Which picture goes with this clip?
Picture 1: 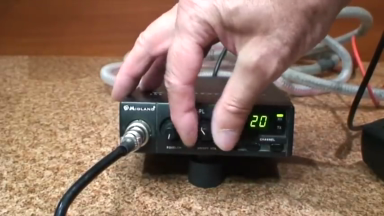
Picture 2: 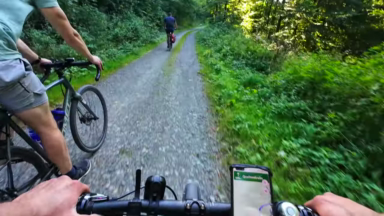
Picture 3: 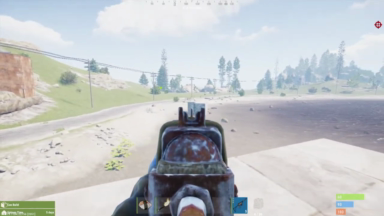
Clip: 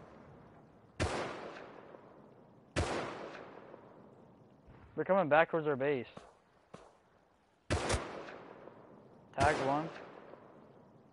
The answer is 3